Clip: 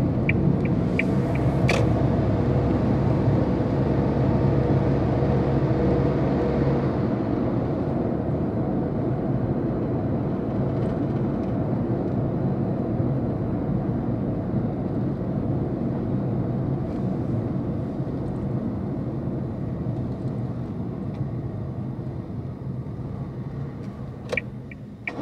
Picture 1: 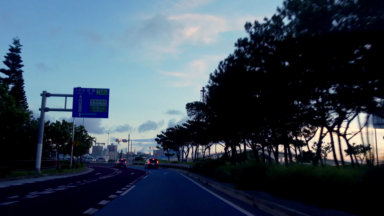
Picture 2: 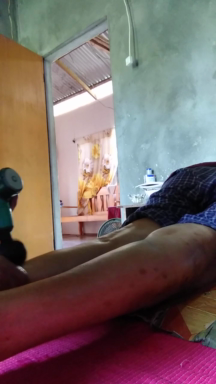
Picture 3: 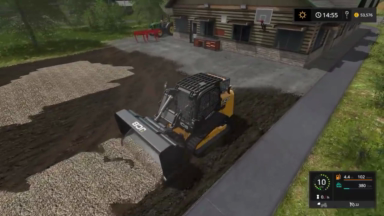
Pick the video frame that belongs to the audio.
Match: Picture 1